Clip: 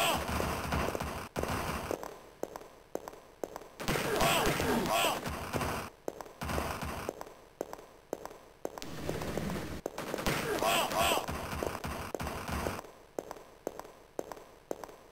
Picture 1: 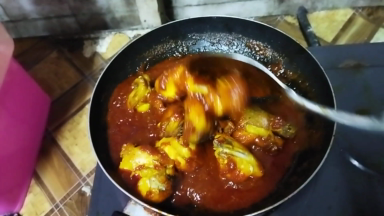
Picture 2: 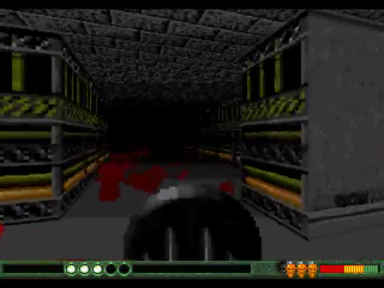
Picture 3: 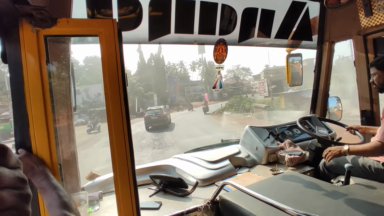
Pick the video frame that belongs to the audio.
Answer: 2